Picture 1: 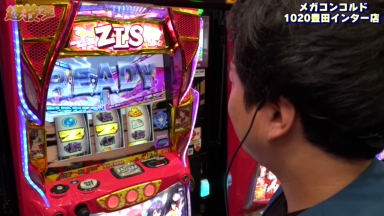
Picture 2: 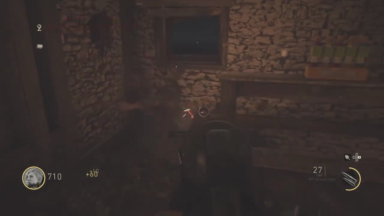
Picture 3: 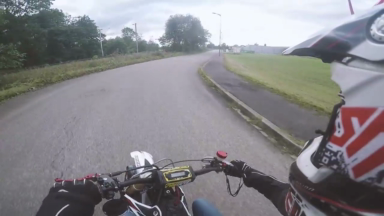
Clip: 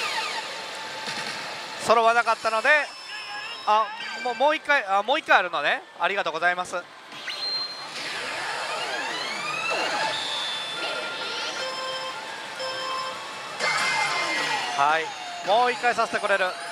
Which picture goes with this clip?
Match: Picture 1